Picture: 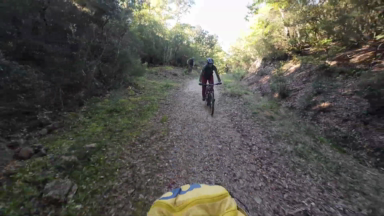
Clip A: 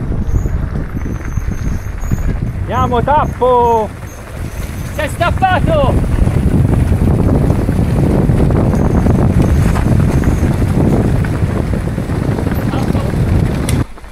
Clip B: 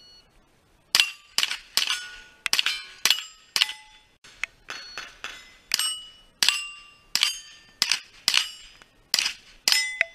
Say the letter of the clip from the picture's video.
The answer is A